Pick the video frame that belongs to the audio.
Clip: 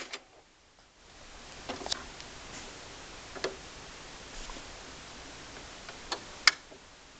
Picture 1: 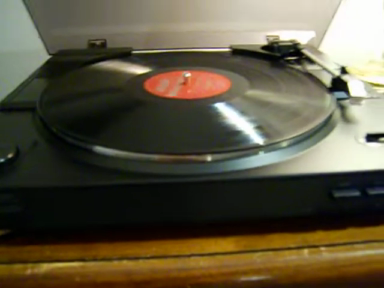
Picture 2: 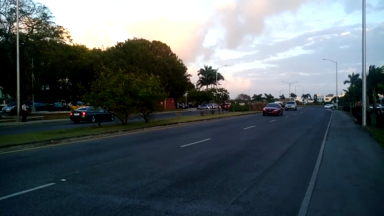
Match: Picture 1